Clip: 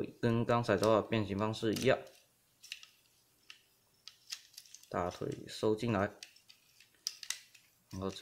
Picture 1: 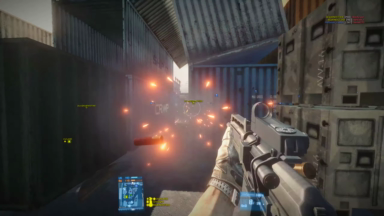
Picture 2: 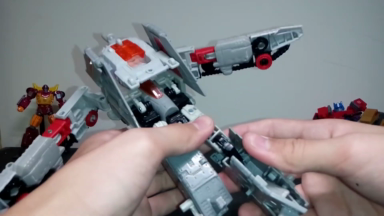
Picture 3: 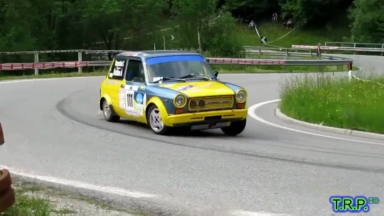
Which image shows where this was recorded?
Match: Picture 2